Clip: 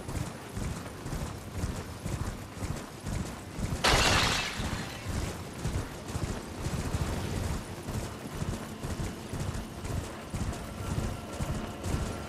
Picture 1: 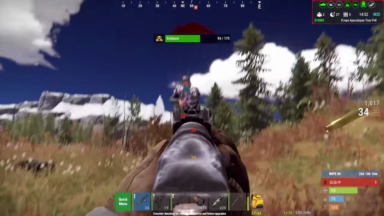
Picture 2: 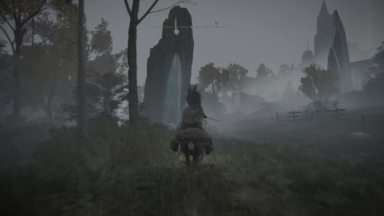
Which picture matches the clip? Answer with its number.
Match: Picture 2